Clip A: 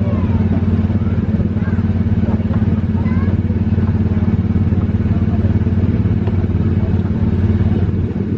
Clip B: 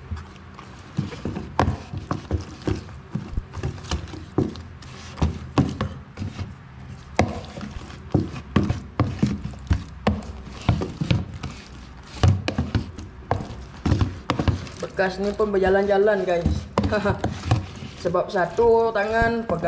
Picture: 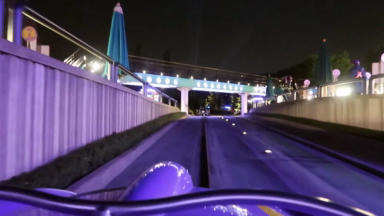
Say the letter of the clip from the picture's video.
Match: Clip A